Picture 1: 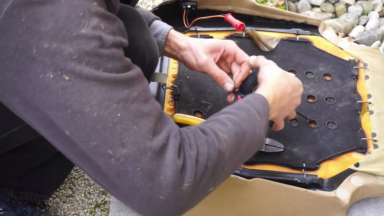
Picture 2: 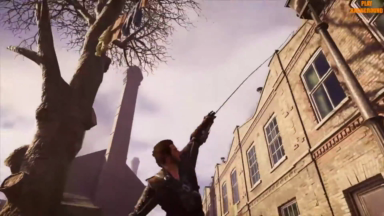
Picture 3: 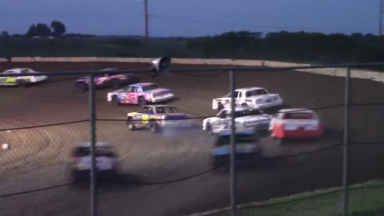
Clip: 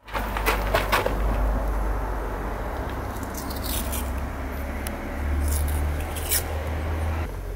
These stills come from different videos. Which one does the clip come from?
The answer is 1